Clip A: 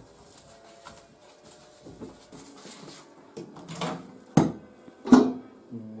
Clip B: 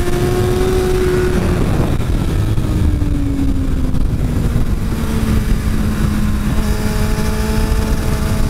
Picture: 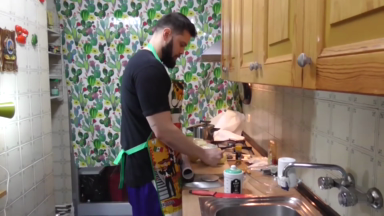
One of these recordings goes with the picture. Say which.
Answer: A